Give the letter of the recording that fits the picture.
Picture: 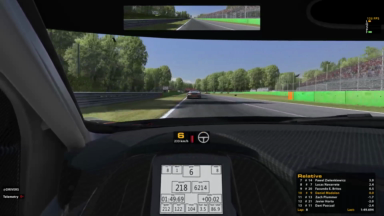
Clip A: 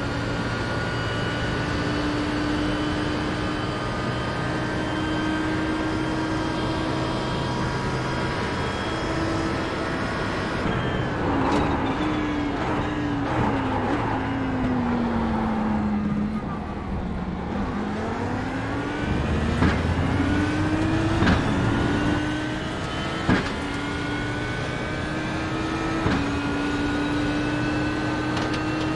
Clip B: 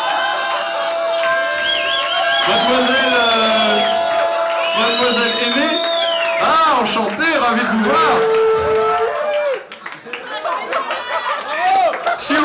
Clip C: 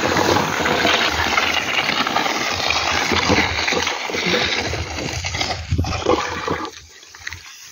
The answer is A